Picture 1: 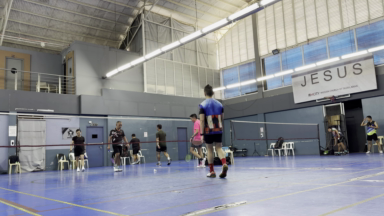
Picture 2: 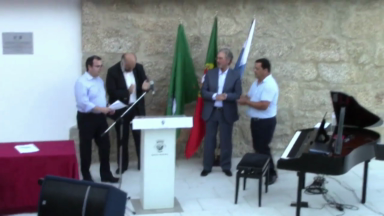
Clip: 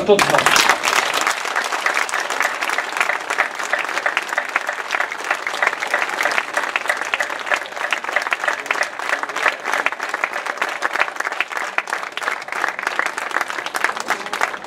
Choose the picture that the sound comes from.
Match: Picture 2